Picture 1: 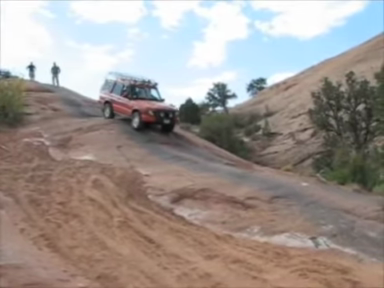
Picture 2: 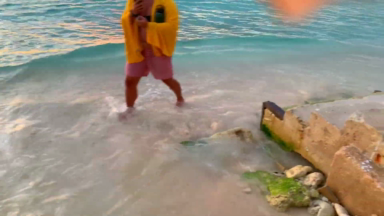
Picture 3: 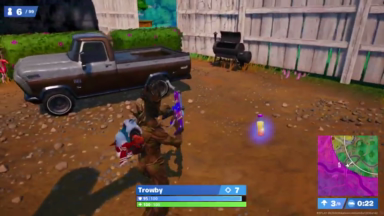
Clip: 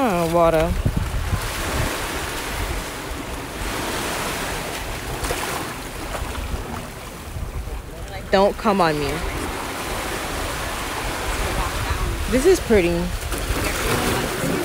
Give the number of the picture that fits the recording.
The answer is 2